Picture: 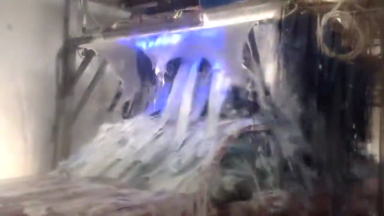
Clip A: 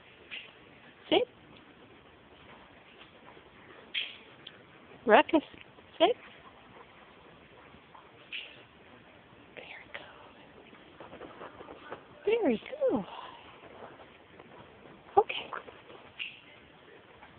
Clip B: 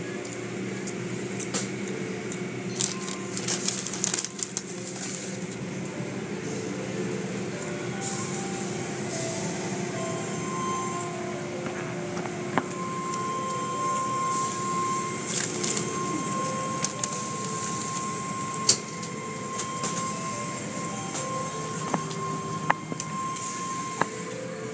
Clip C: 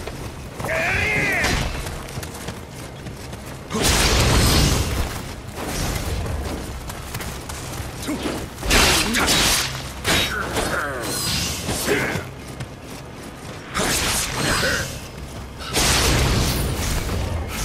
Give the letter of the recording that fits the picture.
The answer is B